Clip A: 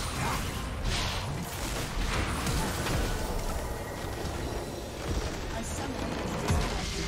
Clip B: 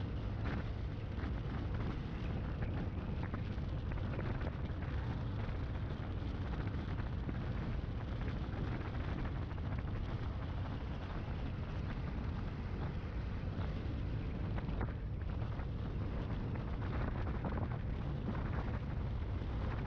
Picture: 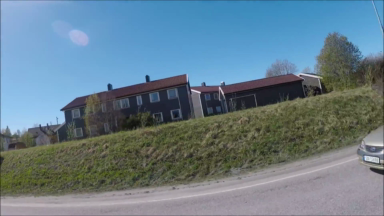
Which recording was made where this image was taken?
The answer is B